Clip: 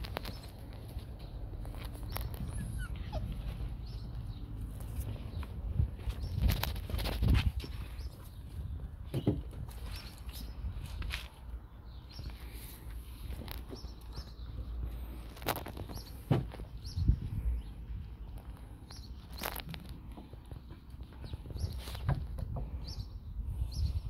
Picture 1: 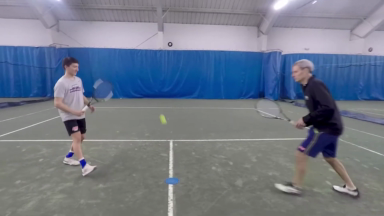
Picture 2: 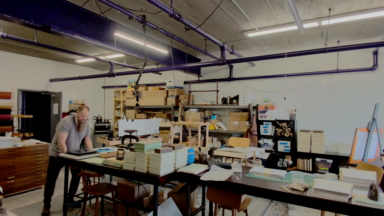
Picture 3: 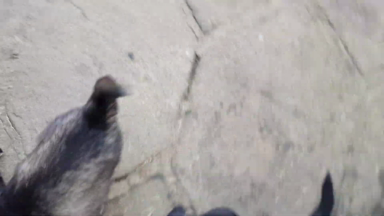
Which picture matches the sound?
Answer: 3